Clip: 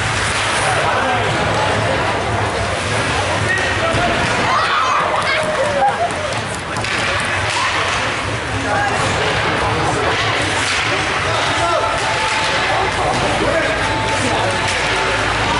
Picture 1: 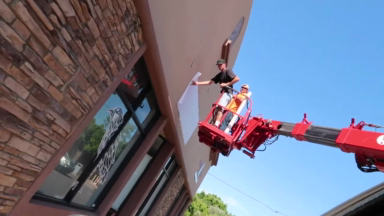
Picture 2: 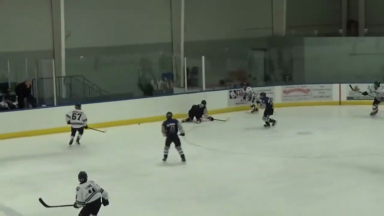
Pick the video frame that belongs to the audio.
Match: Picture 2